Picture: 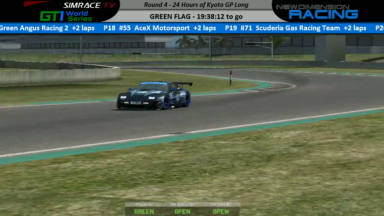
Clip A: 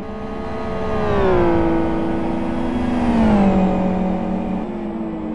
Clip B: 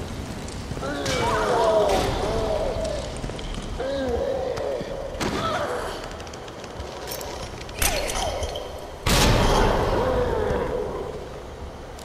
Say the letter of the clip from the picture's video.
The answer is A